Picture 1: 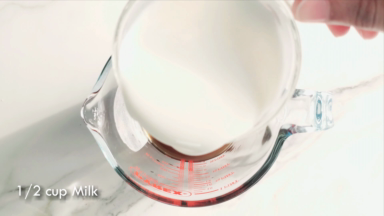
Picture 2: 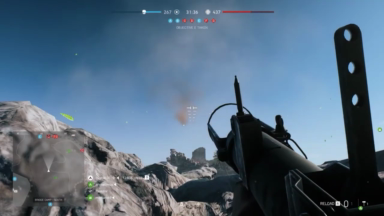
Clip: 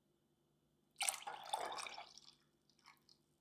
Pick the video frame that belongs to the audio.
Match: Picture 1